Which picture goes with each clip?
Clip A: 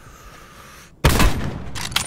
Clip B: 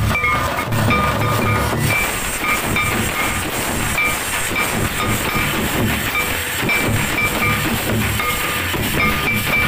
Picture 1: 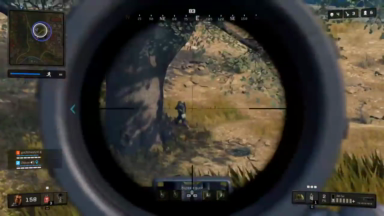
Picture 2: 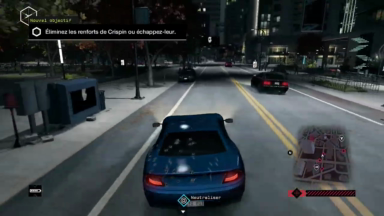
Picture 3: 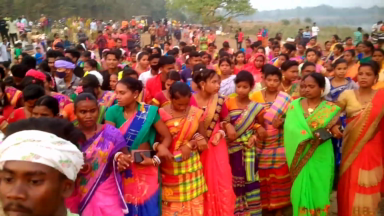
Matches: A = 1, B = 3